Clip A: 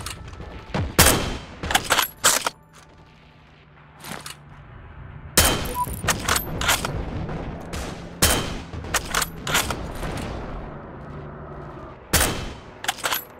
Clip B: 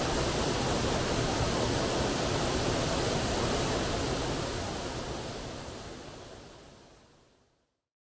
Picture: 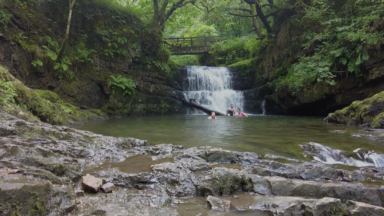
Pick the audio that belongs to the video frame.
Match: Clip B